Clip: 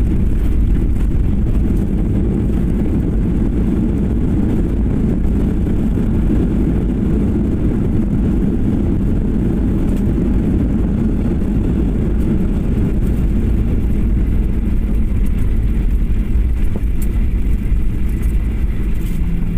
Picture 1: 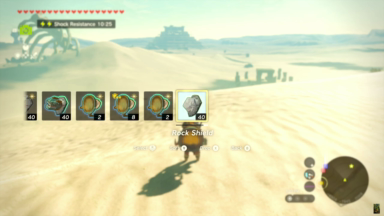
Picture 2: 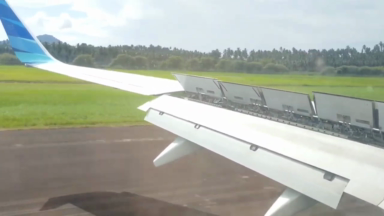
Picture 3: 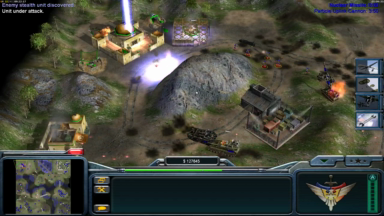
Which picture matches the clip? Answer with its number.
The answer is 2